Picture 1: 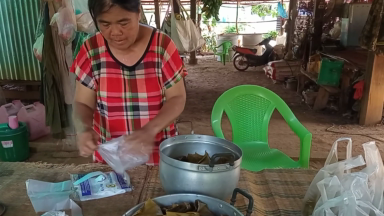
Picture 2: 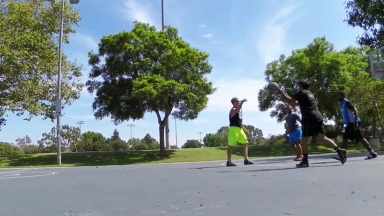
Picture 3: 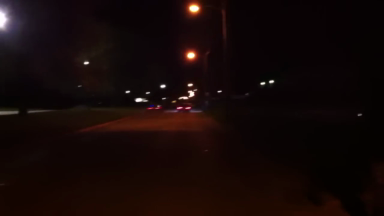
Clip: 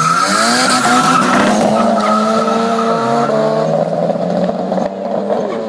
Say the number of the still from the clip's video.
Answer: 3